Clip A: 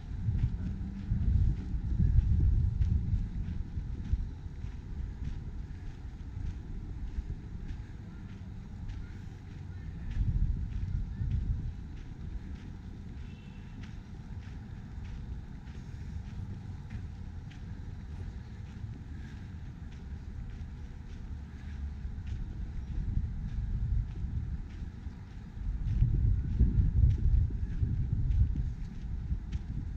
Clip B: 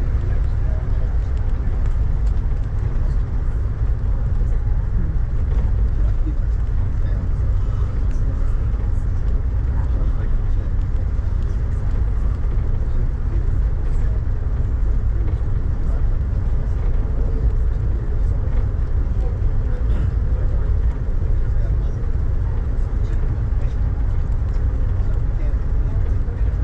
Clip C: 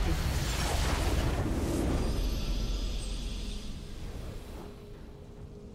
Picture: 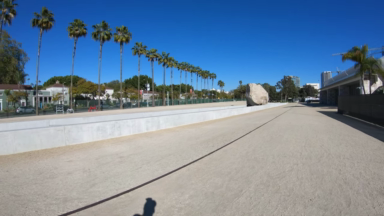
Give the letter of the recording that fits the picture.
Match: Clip A